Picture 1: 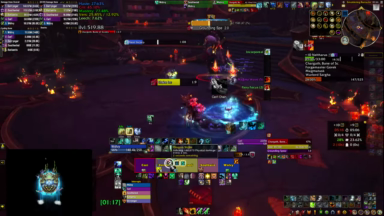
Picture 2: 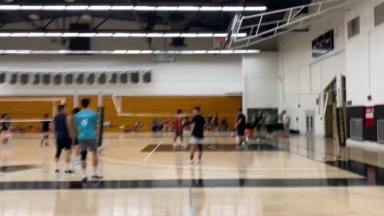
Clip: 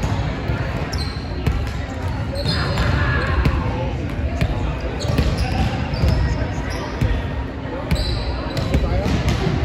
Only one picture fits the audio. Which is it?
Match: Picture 2